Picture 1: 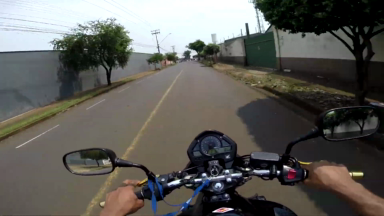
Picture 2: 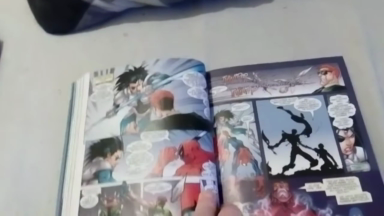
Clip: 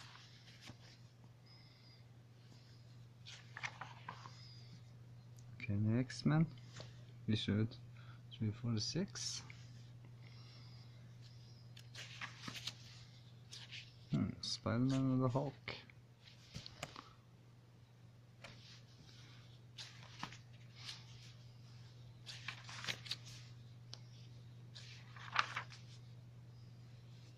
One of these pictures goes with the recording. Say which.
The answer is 2